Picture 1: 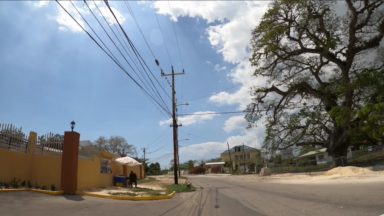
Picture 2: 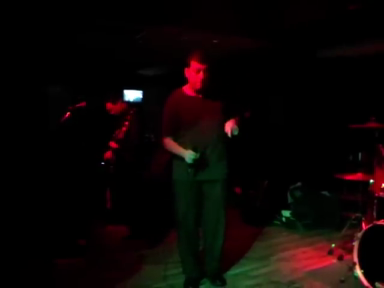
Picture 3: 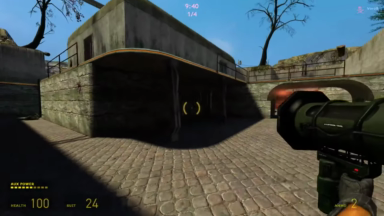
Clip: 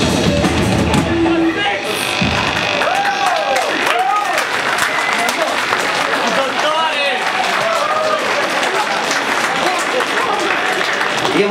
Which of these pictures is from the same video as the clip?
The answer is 2